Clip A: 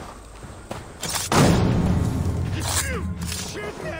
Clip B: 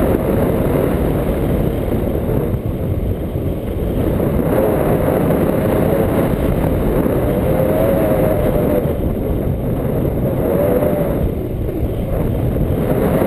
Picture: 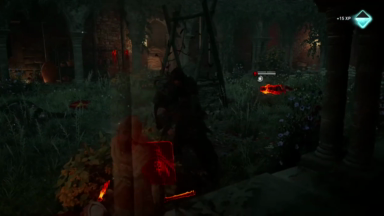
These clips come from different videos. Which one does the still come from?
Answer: A